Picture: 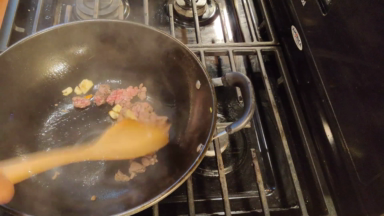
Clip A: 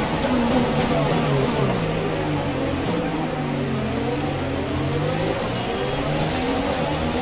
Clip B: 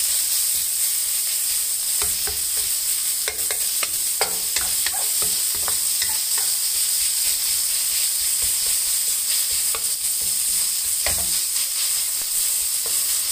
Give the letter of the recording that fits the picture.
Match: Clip B